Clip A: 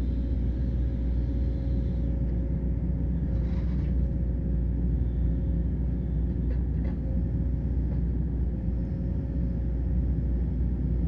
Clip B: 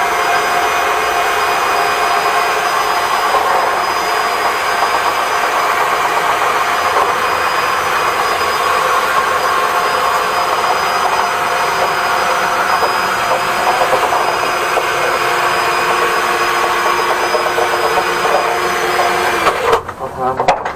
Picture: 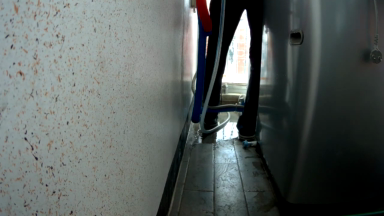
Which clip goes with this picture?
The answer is B